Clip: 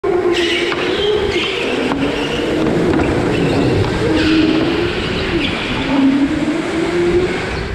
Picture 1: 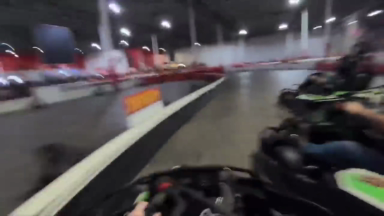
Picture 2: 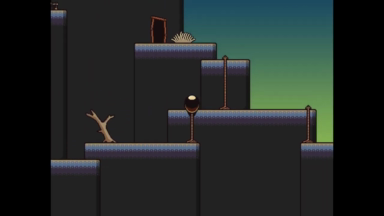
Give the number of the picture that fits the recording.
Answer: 1